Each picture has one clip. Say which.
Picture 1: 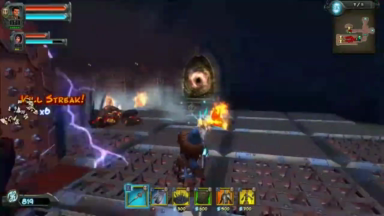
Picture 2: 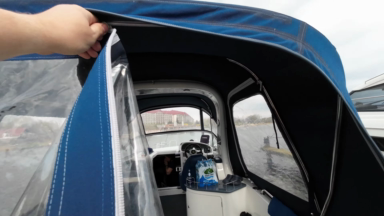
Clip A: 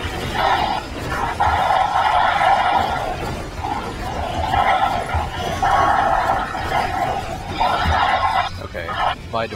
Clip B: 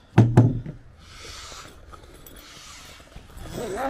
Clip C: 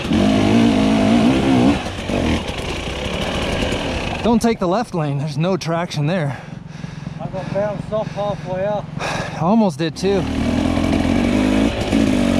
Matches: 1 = A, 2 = B